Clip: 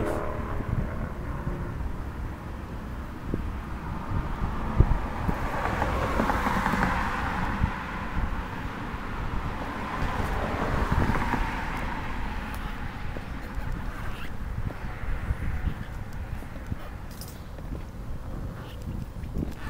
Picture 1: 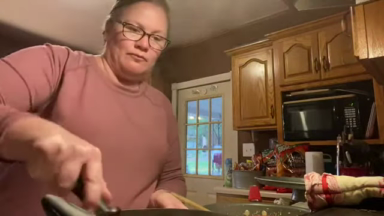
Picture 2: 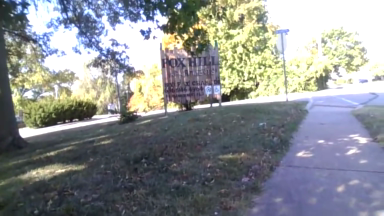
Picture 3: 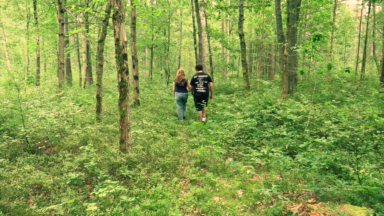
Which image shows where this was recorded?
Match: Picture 2